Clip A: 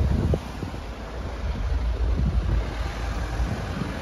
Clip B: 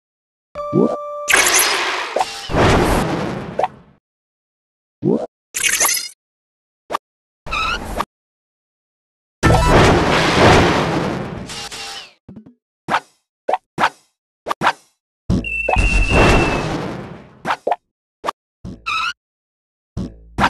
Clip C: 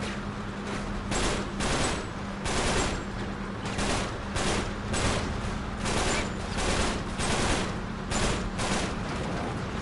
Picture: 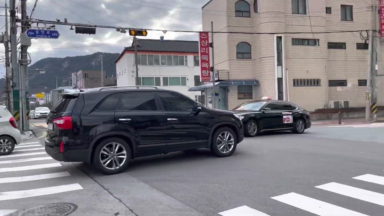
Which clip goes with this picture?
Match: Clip A